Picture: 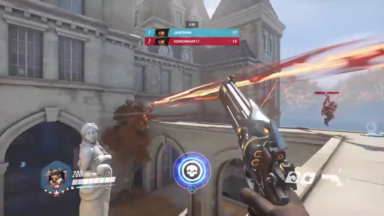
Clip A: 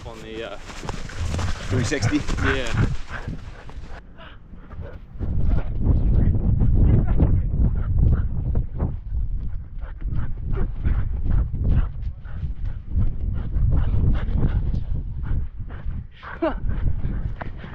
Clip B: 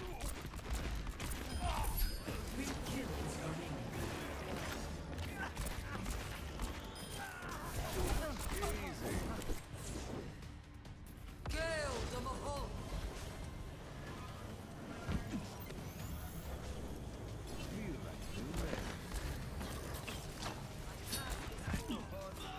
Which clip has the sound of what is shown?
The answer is B